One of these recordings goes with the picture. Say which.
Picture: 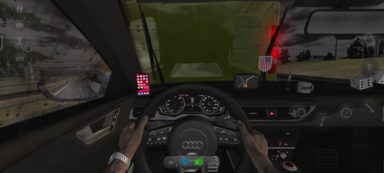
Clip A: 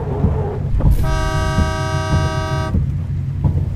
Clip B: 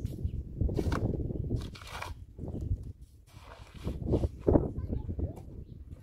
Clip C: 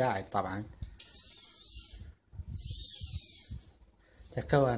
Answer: A